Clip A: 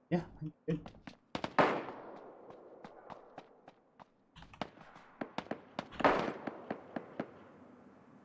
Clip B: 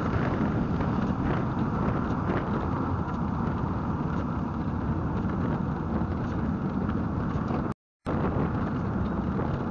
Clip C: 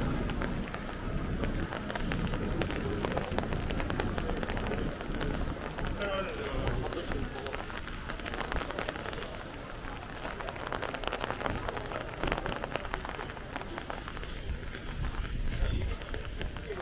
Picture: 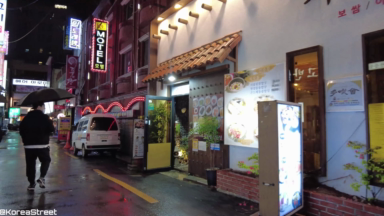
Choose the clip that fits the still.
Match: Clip C